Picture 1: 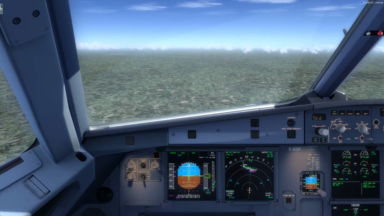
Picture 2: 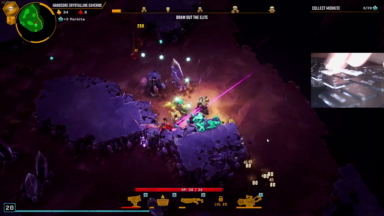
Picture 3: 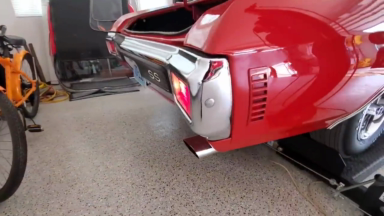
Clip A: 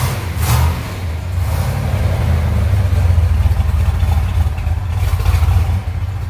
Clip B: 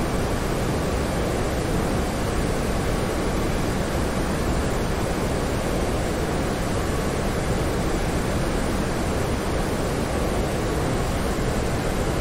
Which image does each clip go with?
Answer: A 3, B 1